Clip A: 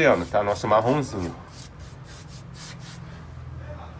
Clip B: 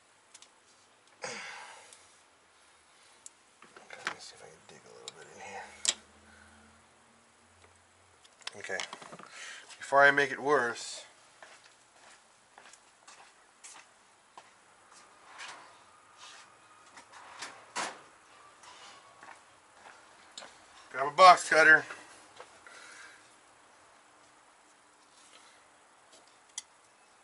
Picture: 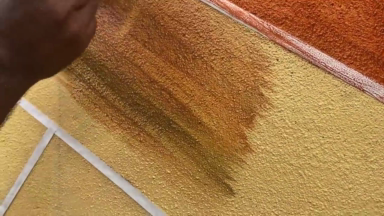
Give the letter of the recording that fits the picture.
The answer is A